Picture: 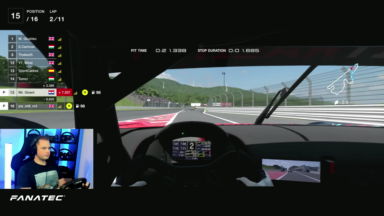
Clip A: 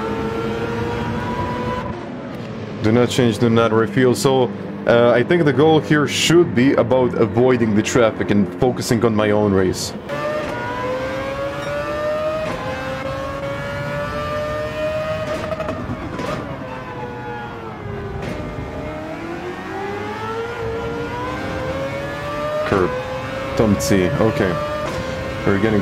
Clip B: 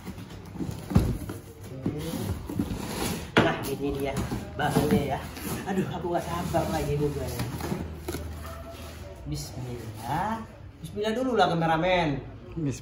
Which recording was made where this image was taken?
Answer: A